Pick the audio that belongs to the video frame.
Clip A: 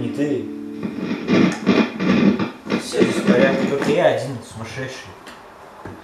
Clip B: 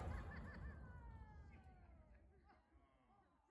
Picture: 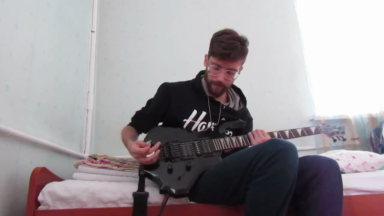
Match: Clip A